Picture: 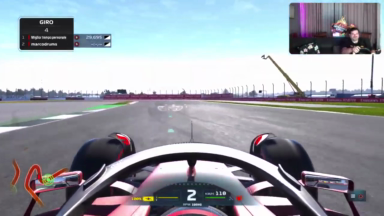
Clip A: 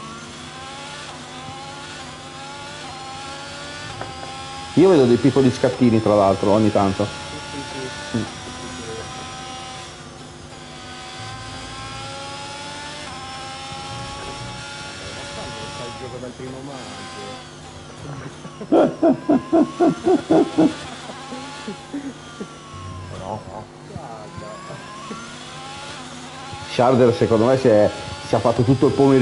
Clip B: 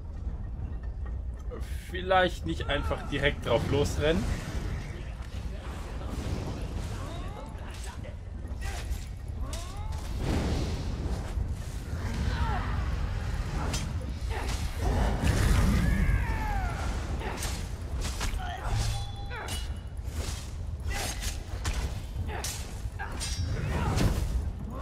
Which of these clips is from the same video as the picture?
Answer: A